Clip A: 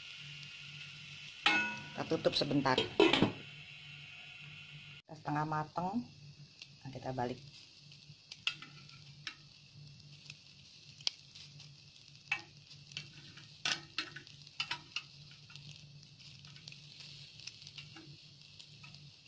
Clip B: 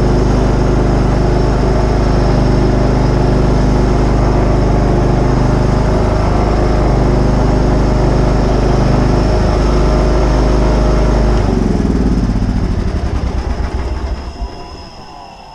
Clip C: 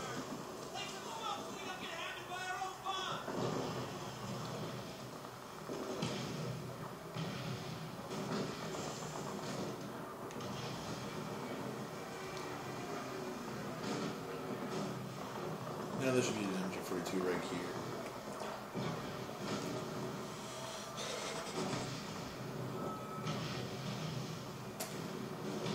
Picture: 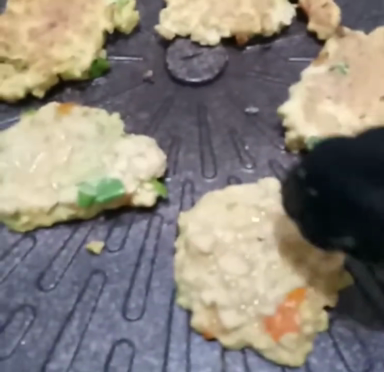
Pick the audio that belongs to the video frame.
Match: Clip A